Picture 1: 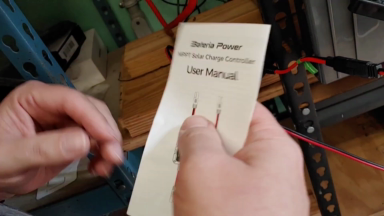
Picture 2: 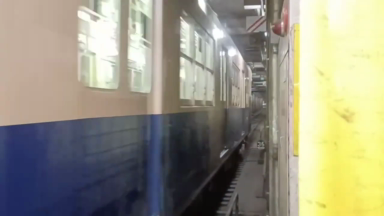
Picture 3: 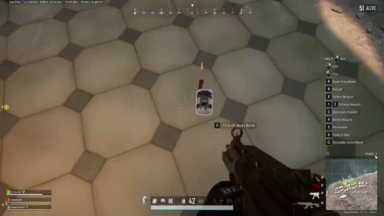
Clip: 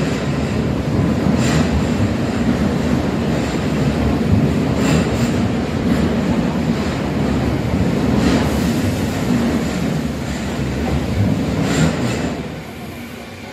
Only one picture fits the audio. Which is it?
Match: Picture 2